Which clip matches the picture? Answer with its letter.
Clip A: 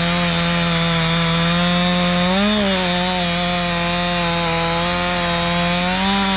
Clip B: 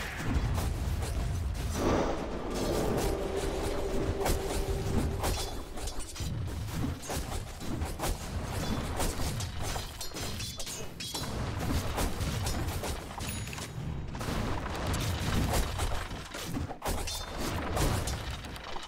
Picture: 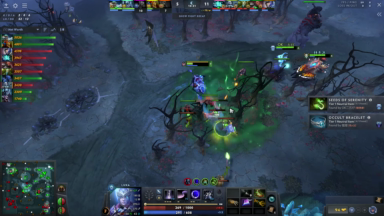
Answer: B